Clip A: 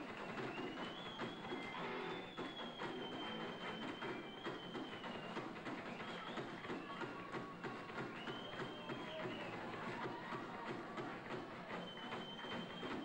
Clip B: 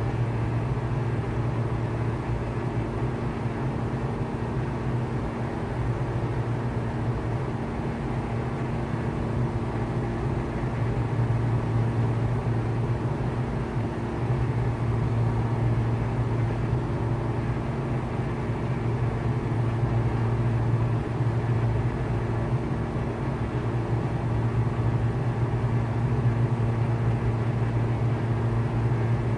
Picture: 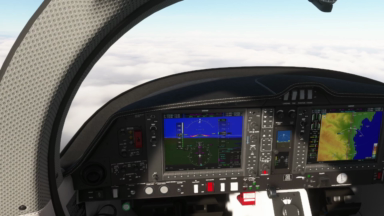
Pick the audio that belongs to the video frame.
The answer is B